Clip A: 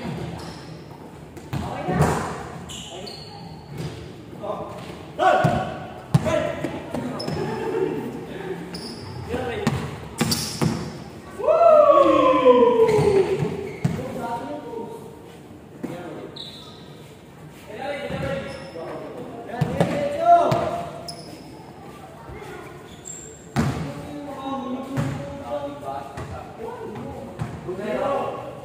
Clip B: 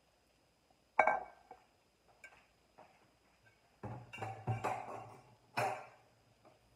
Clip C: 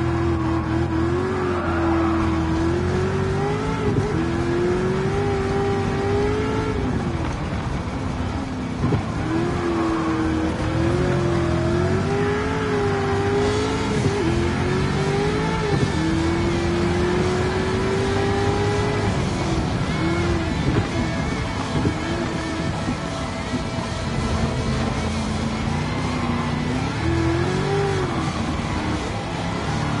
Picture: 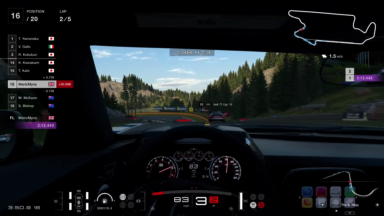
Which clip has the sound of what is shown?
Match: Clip C